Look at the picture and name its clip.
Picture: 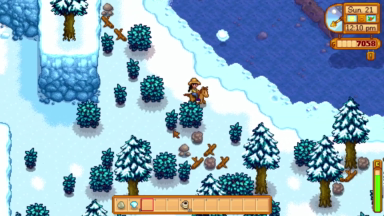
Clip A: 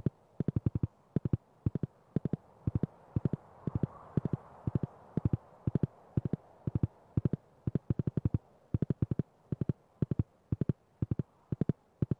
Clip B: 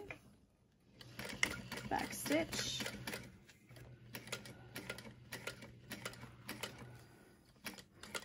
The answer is A